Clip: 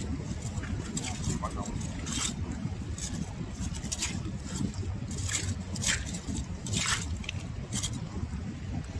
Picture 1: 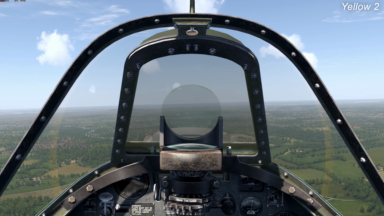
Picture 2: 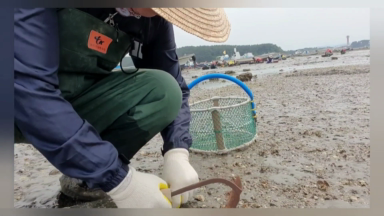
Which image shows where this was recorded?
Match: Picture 2